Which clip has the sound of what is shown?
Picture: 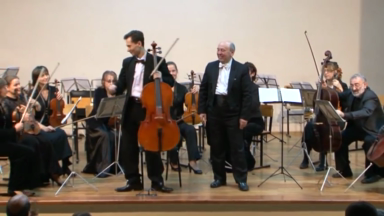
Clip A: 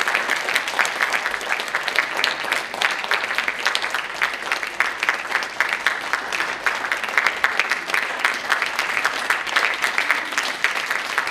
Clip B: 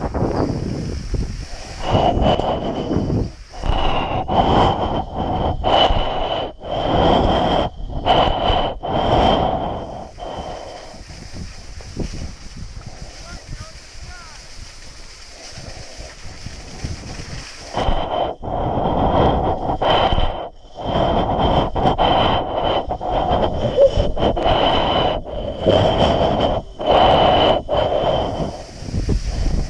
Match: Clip A